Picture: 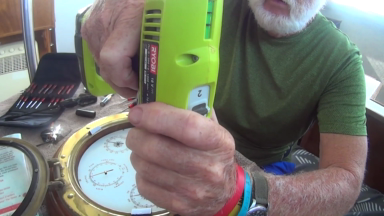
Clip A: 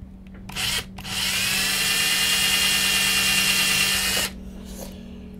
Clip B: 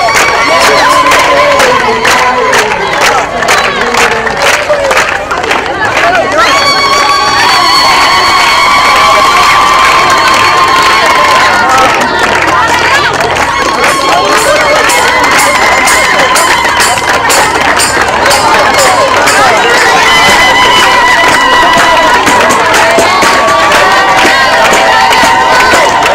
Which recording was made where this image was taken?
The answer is A